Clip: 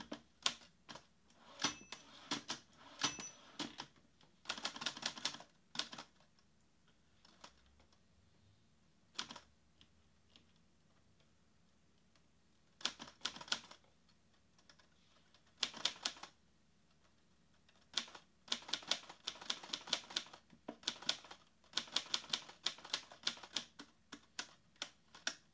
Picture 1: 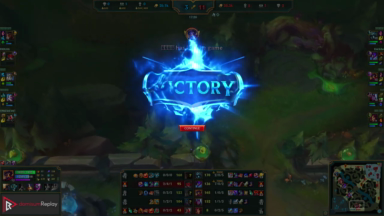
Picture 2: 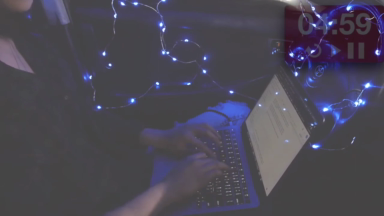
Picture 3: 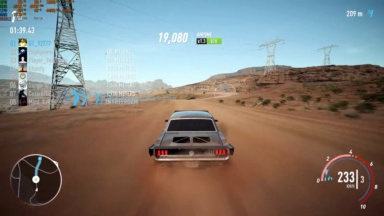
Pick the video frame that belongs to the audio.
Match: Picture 2